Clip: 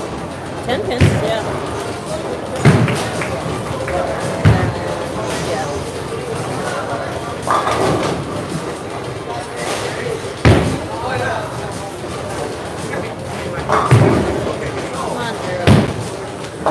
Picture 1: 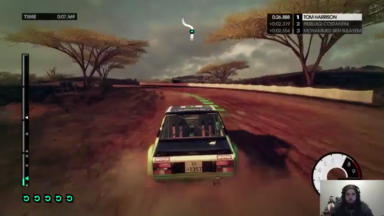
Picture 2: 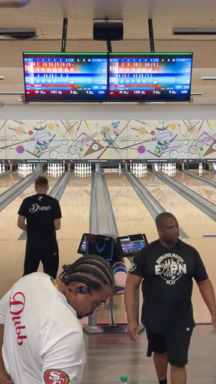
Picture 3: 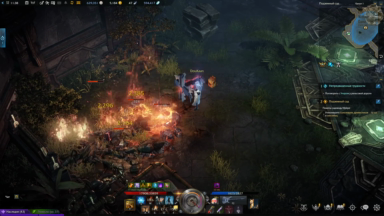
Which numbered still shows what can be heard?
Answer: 2